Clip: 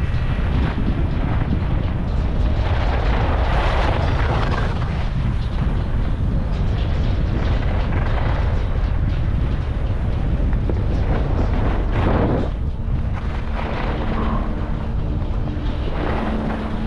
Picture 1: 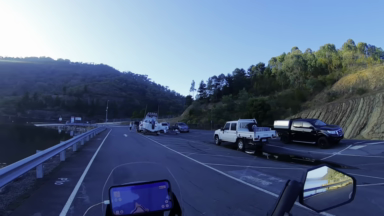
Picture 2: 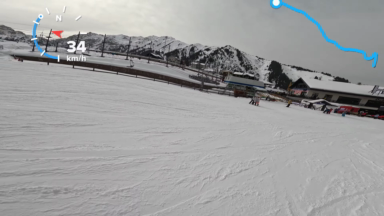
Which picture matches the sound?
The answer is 2